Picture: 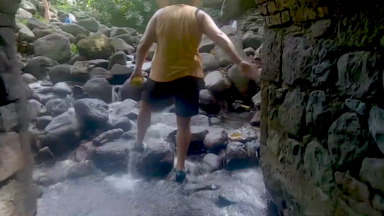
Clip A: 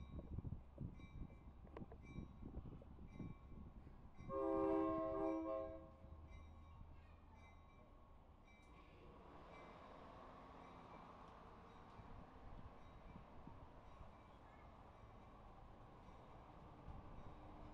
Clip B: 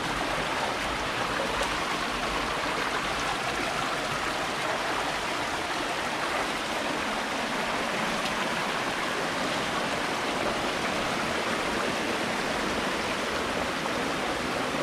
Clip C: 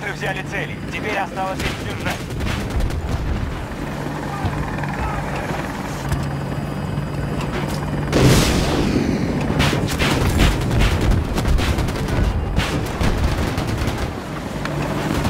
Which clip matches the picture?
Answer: B